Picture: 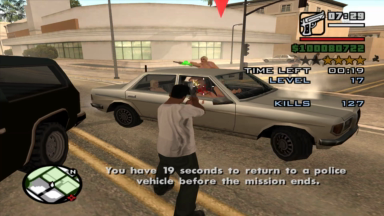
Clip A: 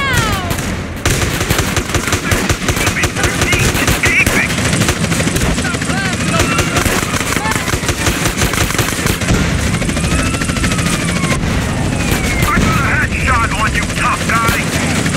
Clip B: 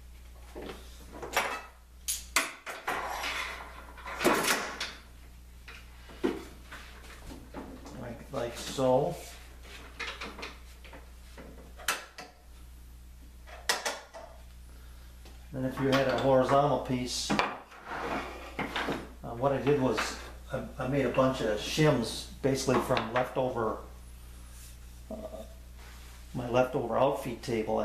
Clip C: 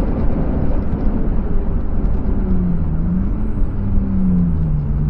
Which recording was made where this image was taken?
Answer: A